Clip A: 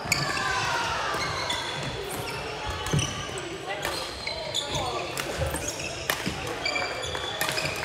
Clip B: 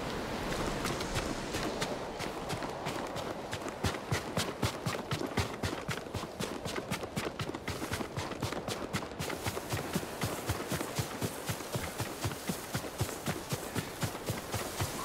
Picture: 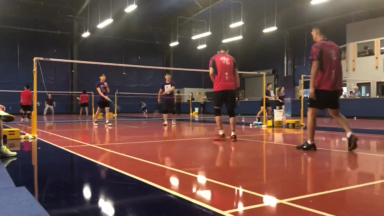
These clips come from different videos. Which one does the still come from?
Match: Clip A